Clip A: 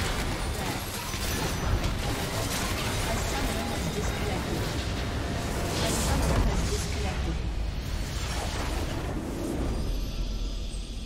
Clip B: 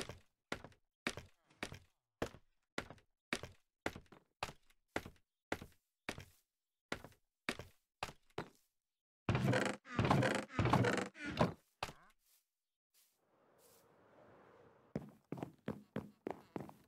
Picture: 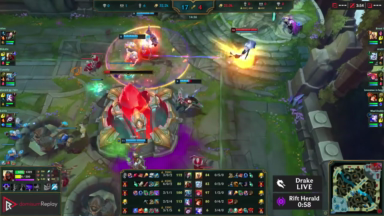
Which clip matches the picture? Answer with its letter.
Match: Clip A